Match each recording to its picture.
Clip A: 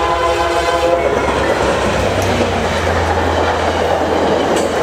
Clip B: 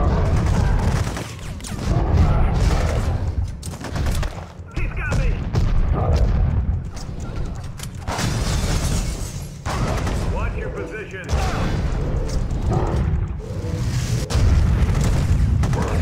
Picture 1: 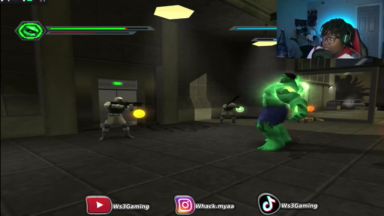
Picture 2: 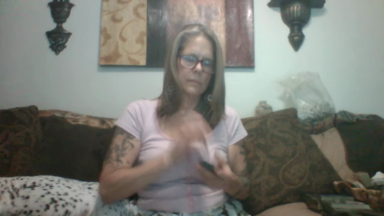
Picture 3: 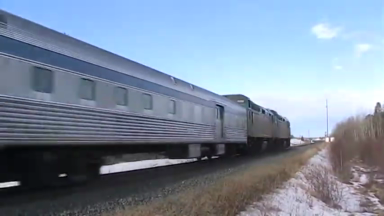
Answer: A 3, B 1